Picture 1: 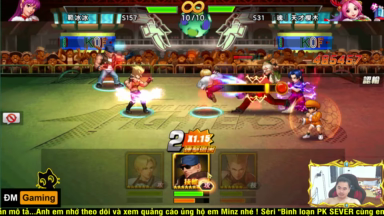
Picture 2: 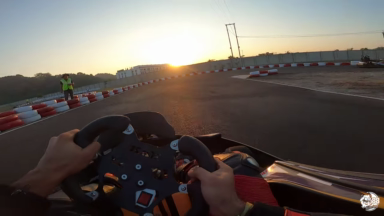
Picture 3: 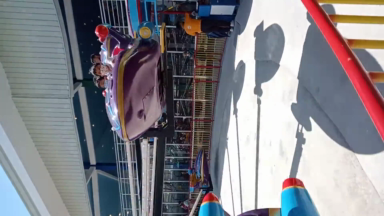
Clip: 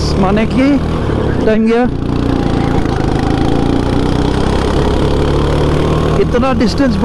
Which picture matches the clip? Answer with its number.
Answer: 2